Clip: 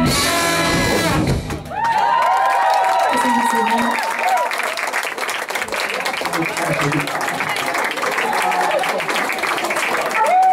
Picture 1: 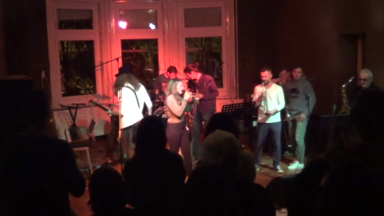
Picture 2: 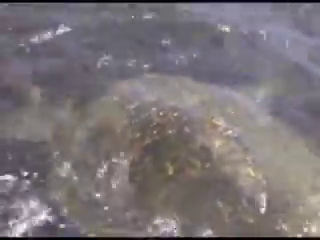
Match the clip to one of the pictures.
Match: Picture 1